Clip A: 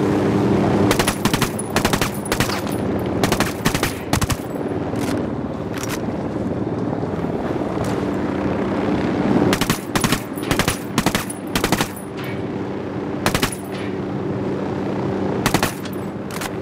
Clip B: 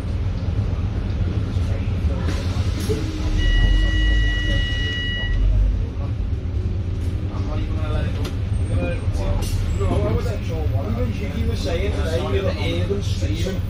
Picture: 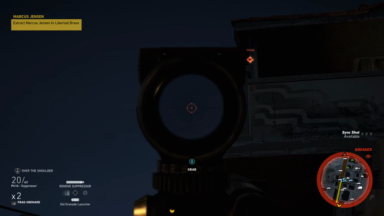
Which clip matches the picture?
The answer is A